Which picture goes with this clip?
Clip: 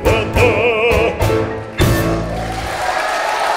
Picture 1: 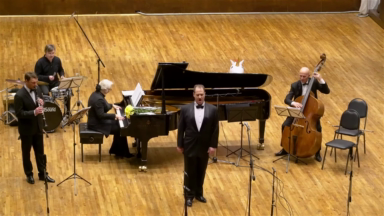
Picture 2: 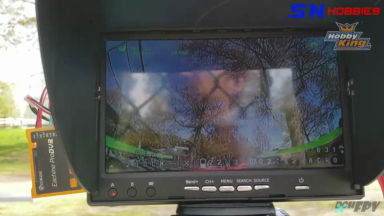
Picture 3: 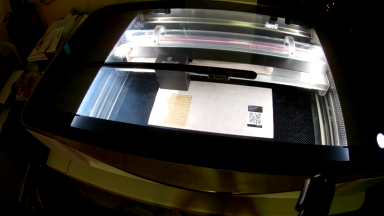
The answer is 1